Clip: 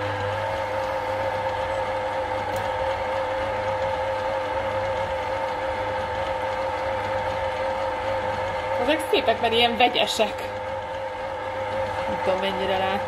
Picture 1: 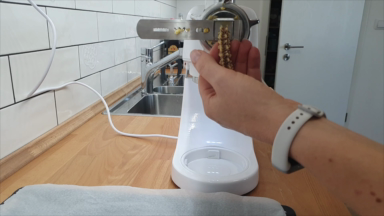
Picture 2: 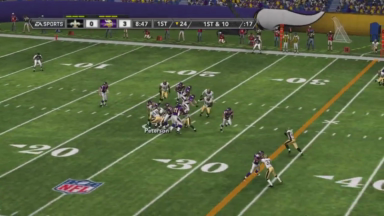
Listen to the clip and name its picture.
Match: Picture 1